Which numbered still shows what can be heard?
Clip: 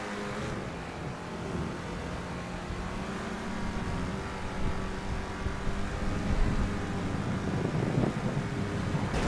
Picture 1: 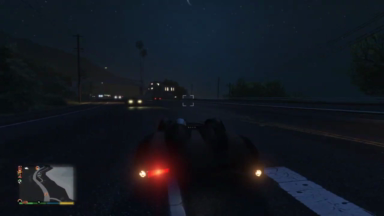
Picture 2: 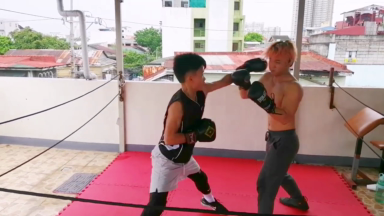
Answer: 1